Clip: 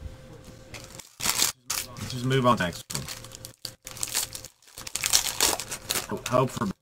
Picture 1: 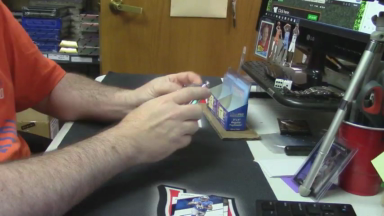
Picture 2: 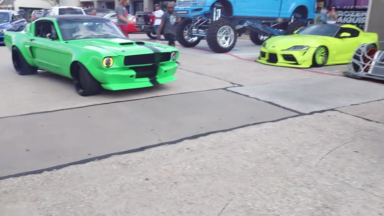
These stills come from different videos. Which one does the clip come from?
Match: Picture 1